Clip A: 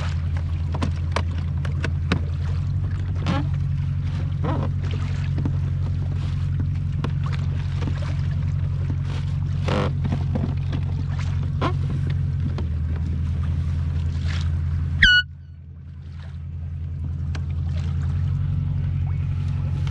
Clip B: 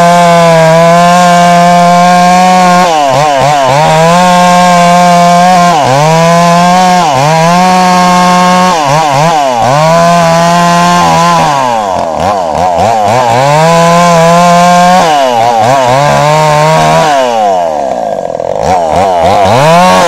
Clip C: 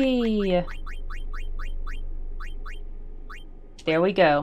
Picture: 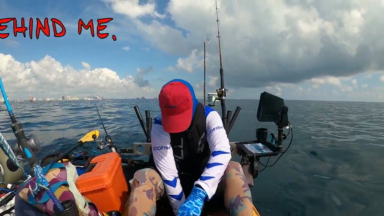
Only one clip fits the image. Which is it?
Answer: A